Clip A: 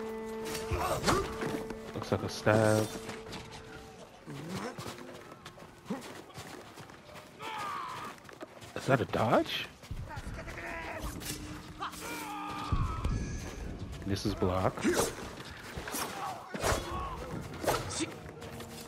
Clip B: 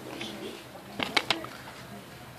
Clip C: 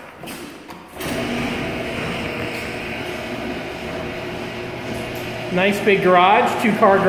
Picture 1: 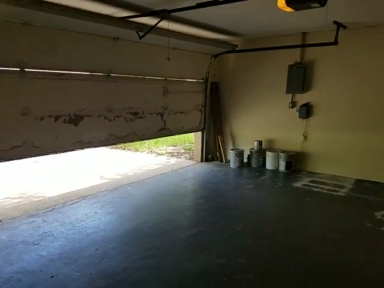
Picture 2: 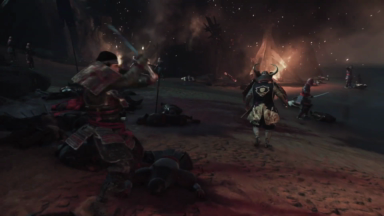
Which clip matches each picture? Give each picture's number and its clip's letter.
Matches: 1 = C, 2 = A